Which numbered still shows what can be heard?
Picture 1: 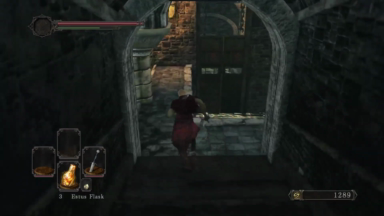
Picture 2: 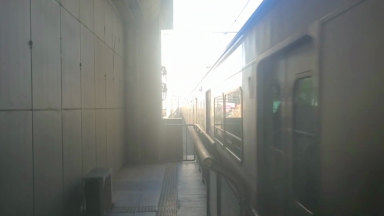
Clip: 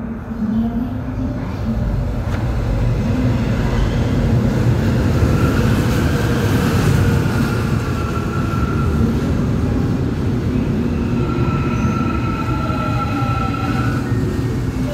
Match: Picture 2